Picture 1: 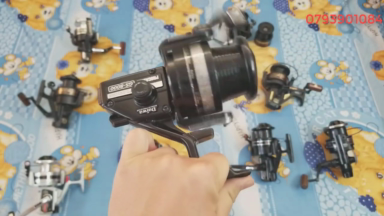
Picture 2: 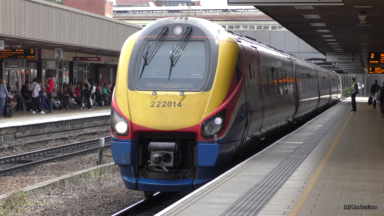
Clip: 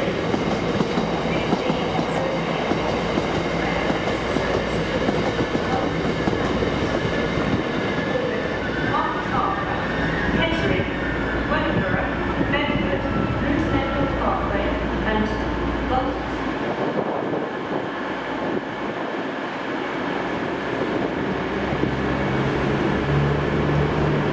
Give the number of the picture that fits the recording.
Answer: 2